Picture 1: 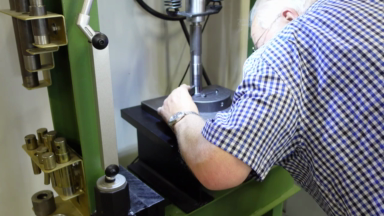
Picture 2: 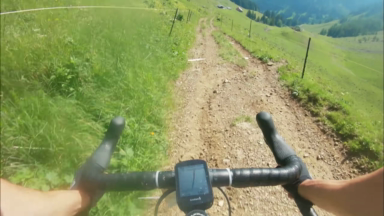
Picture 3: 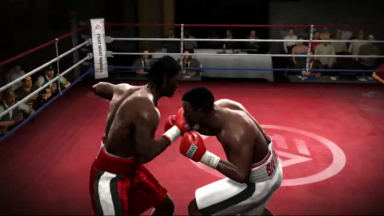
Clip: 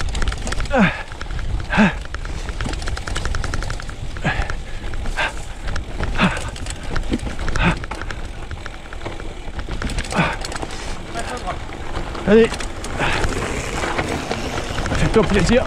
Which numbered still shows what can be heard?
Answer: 2